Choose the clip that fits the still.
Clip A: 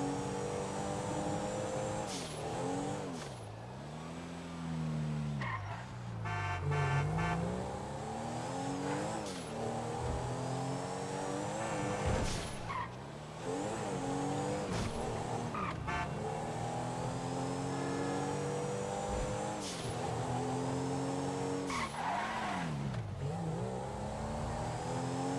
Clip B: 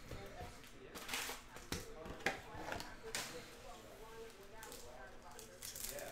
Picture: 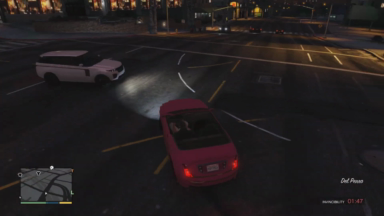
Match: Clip A